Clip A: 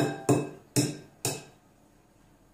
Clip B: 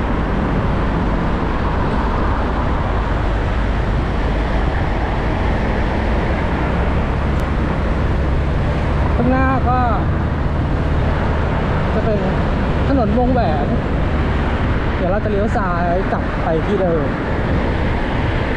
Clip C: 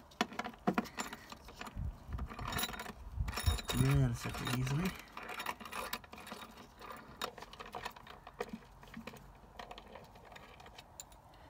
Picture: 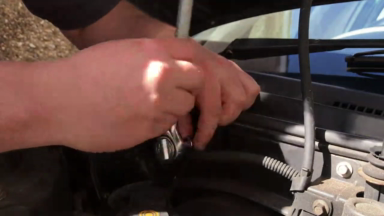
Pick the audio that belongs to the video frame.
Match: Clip C